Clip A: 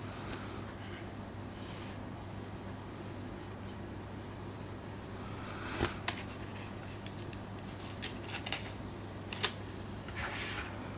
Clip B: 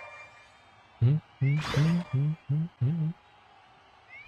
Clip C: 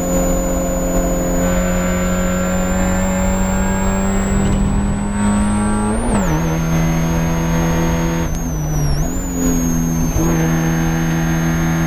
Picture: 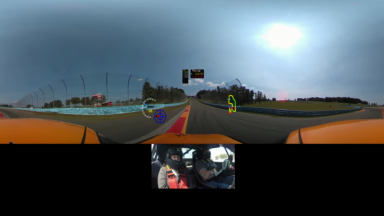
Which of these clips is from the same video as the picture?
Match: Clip C